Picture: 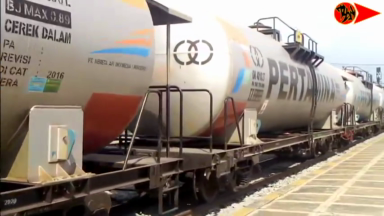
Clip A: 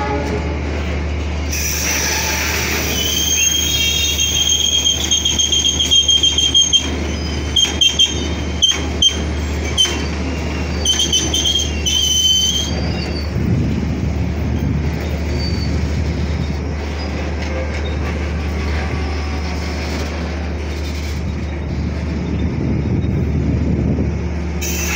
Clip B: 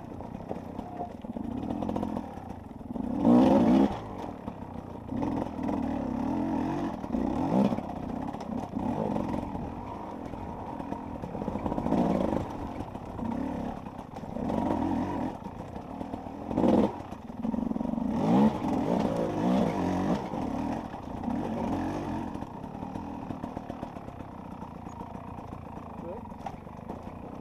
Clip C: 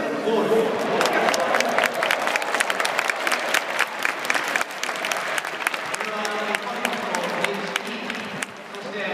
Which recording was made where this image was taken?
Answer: A